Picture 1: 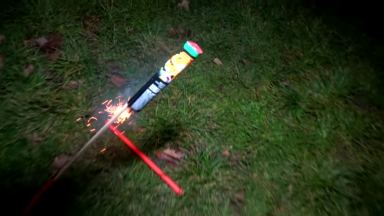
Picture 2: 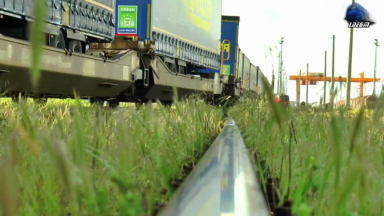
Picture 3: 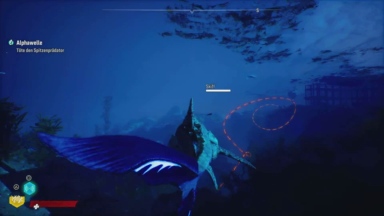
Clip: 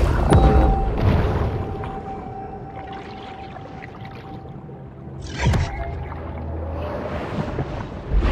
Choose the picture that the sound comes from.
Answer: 3